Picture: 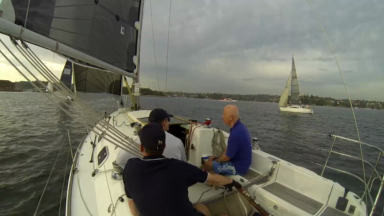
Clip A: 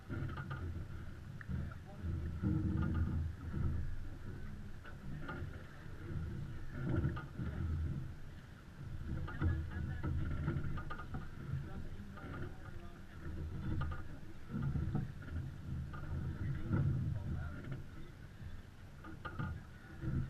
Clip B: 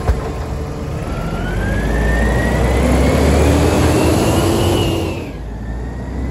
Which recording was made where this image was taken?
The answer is A